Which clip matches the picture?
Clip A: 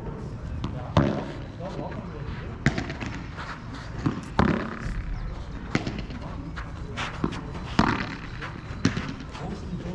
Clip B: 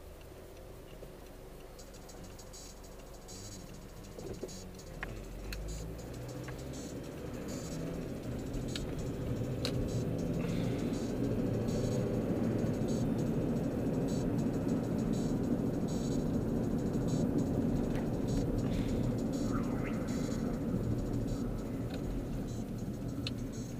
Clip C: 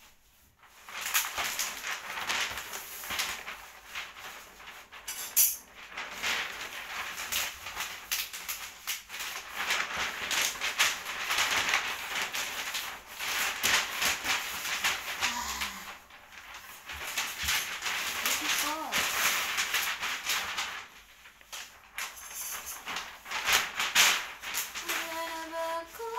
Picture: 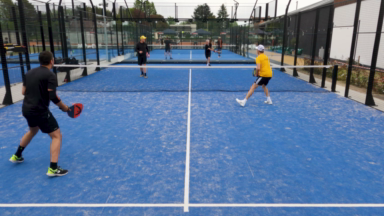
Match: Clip A